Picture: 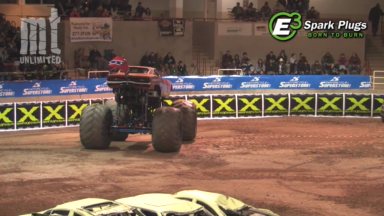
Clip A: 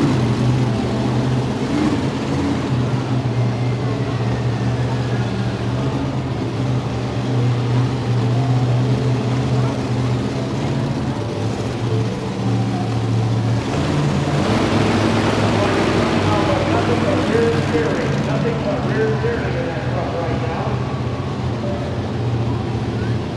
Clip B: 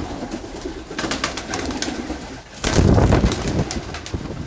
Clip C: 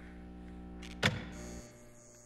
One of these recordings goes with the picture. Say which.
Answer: A